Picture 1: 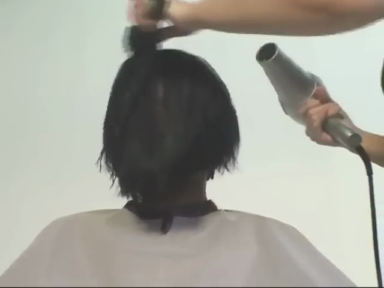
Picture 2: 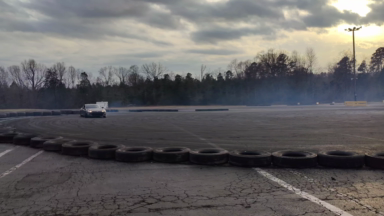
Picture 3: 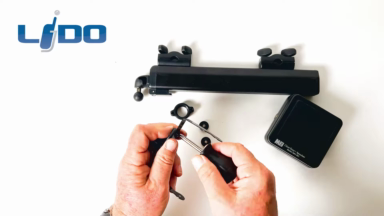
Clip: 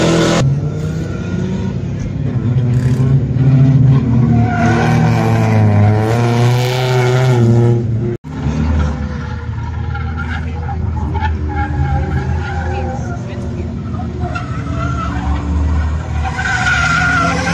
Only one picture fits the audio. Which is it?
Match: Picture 2